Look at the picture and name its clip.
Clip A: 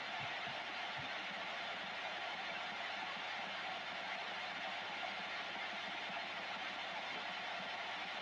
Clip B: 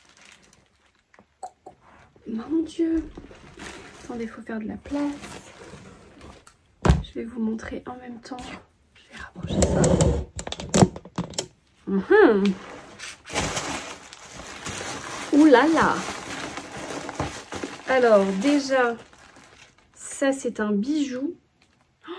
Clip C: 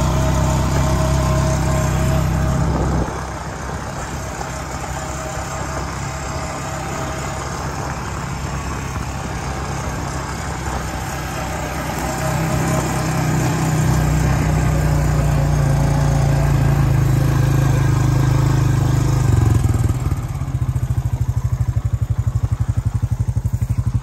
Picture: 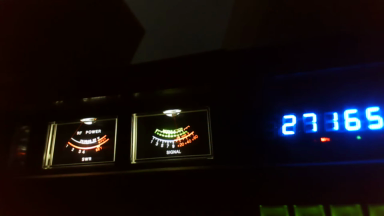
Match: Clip A